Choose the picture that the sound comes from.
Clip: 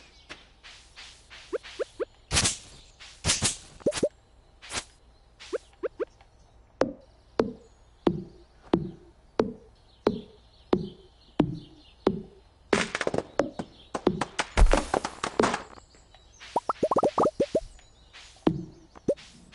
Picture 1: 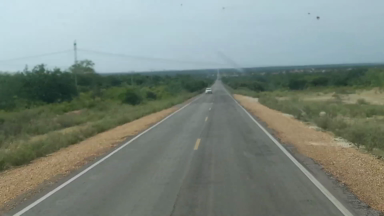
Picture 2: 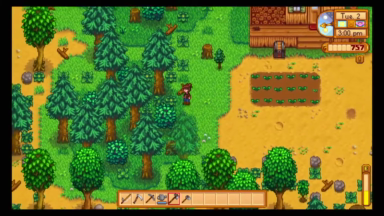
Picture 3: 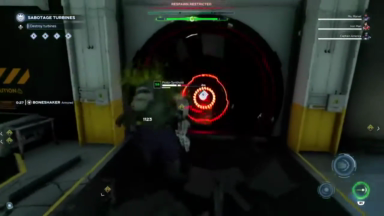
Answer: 2